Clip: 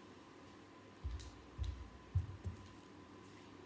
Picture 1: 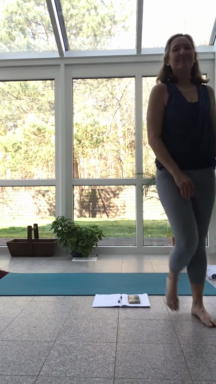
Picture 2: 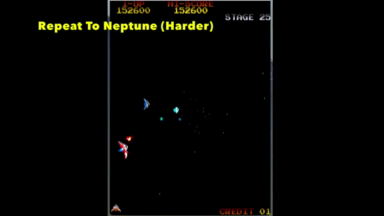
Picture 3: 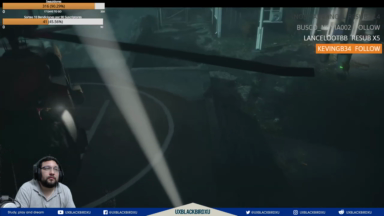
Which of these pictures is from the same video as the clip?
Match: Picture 1